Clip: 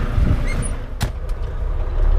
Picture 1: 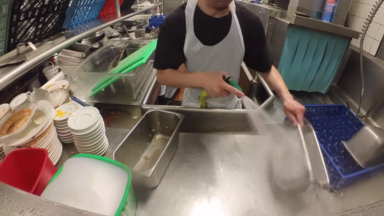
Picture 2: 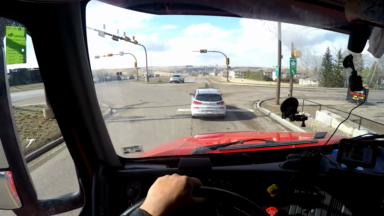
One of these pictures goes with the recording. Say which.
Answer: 2